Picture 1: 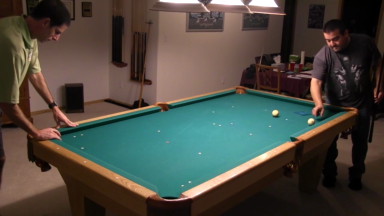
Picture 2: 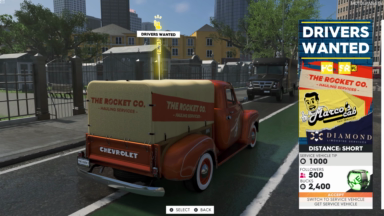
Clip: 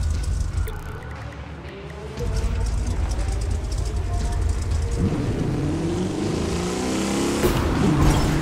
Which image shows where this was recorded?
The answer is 2